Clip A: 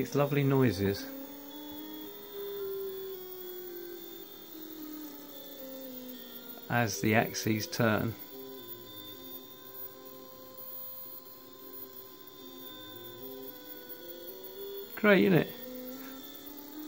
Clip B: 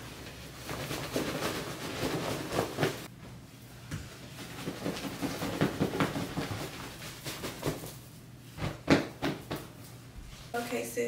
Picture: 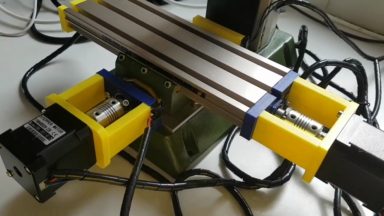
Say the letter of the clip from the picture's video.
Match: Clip A